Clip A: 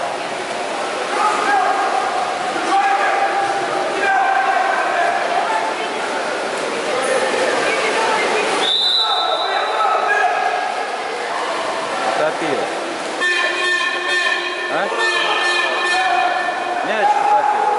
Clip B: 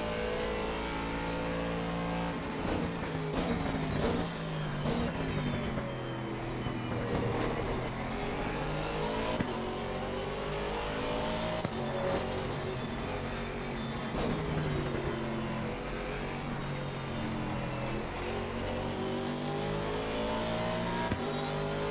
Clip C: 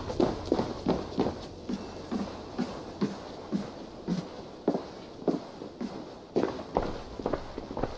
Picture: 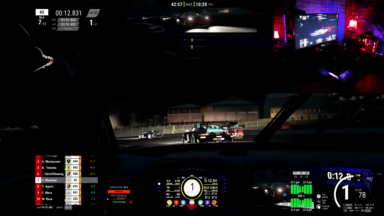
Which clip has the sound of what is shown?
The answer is B